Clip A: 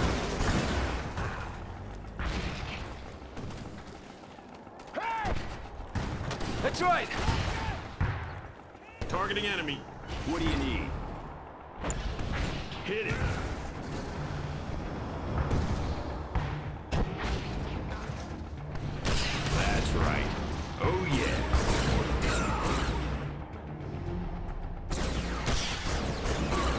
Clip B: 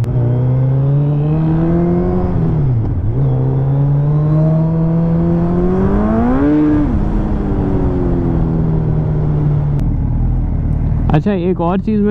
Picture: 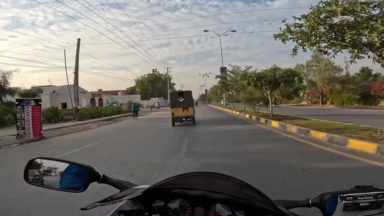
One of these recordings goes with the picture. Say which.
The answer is B